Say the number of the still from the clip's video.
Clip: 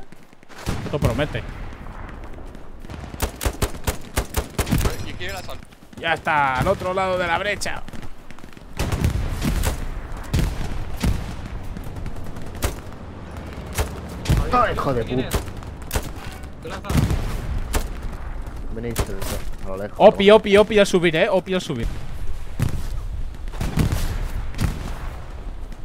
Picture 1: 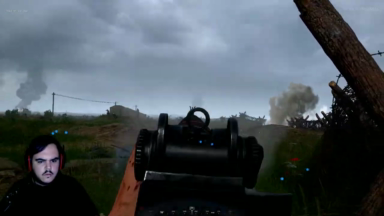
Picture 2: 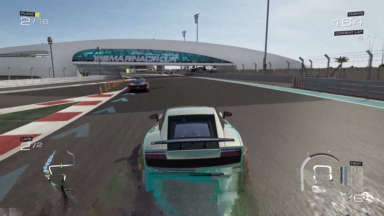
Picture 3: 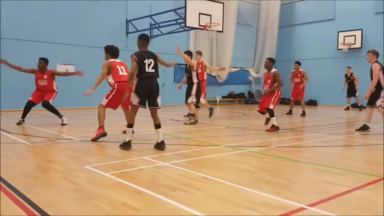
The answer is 1